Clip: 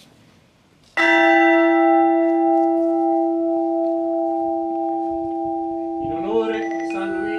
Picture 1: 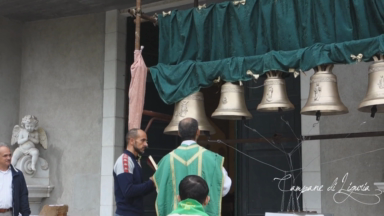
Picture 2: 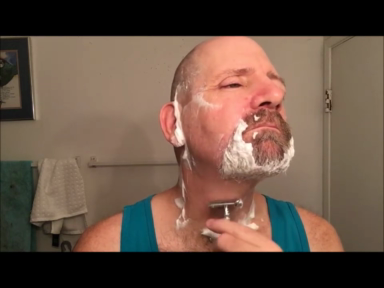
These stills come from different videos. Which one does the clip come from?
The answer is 1